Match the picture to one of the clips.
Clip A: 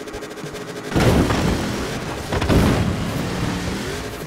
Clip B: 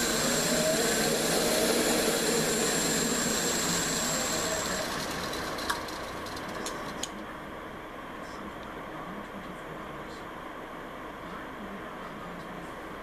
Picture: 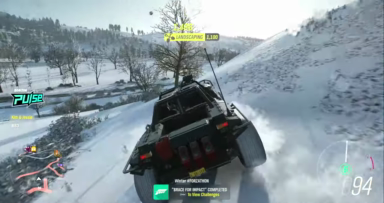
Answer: A